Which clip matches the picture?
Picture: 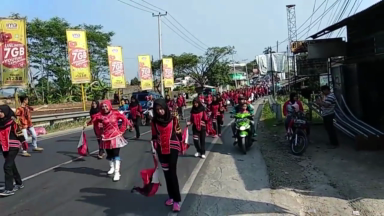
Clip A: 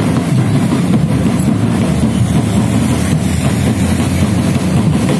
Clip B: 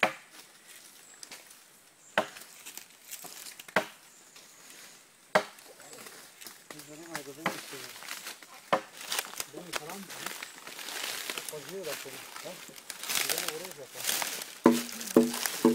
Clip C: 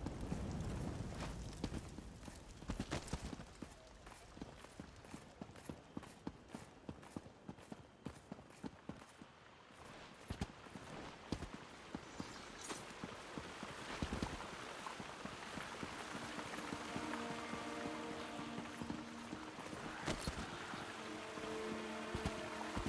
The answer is A